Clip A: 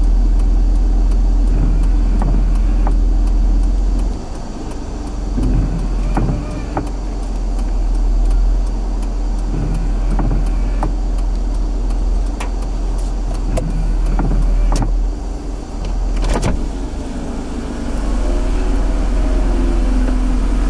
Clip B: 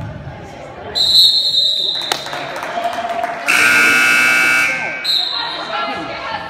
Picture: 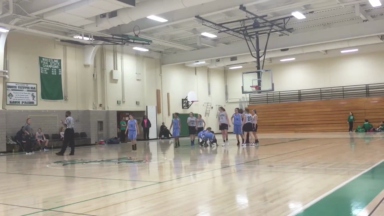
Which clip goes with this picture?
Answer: B